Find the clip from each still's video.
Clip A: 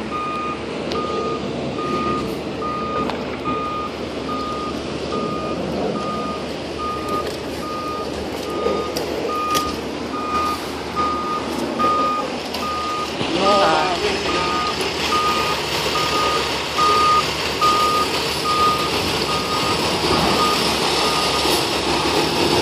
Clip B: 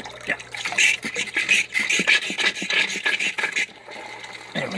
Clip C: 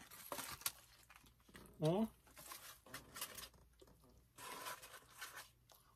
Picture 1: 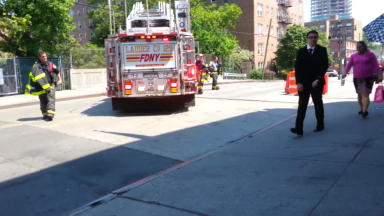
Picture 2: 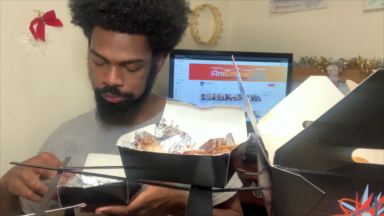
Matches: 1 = A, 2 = C